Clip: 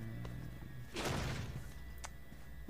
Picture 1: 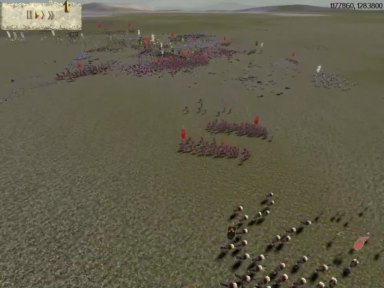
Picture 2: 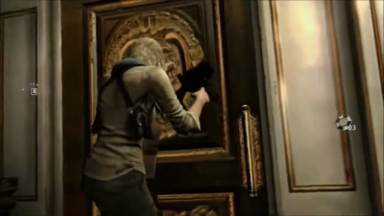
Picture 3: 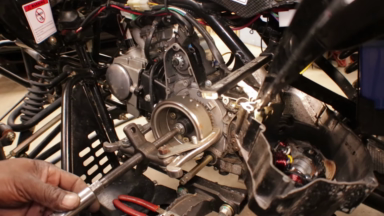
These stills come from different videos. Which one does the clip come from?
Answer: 2